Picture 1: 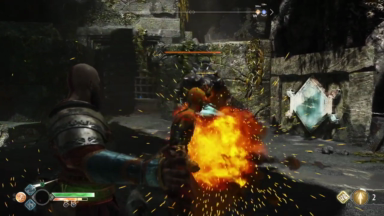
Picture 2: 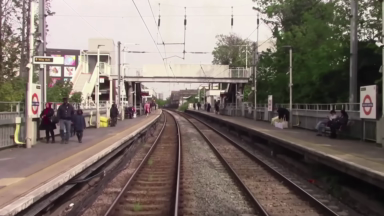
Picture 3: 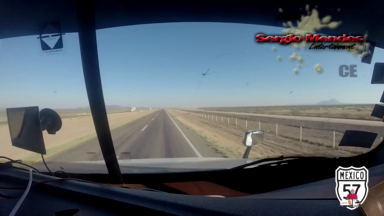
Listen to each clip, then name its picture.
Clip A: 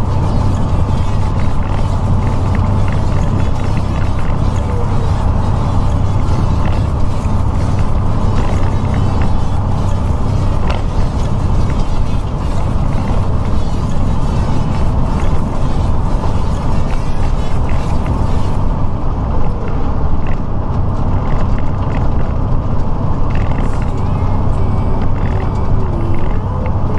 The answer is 3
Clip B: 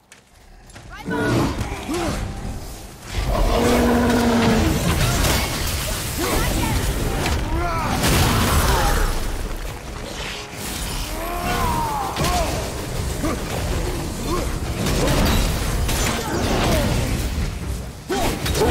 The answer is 1